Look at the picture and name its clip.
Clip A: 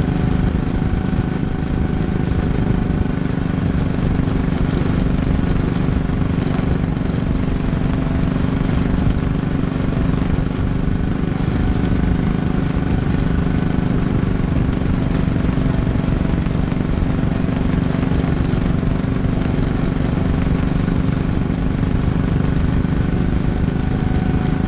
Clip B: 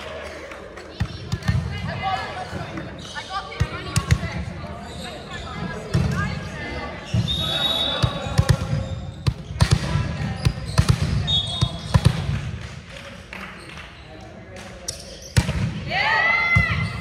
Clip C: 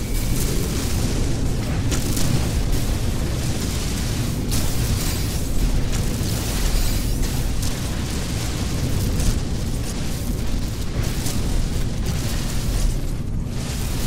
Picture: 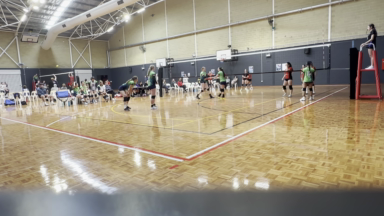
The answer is B